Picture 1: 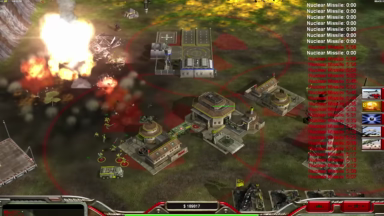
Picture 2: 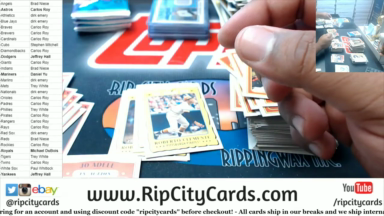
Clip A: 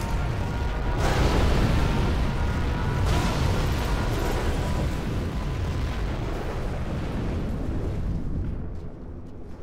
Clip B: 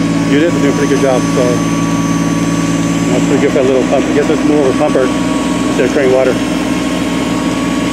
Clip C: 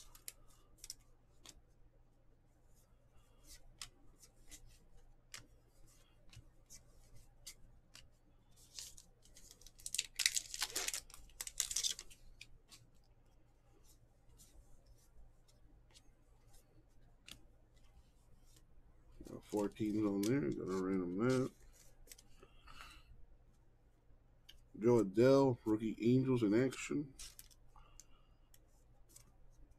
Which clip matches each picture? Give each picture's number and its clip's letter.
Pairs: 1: A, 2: C